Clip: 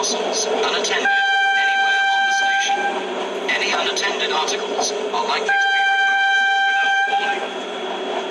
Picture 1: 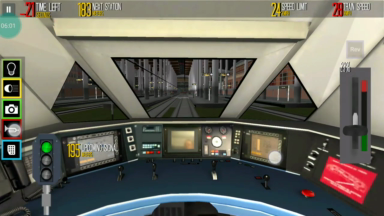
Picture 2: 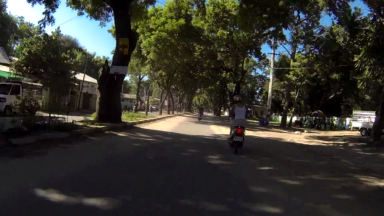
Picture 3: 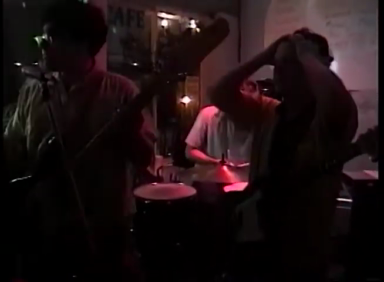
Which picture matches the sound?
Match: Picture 1